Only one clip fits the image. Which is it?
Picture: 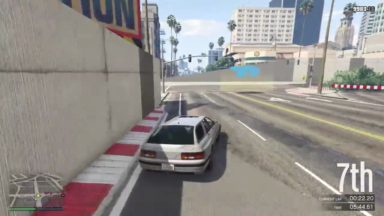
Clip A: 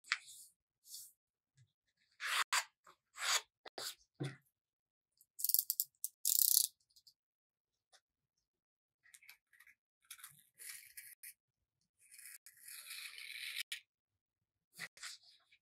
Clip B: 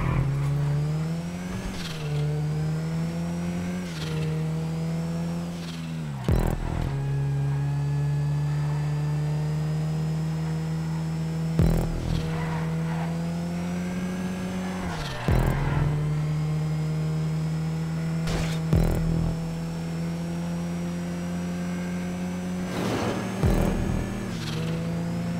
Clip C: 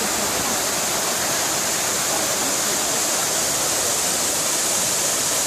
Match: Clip B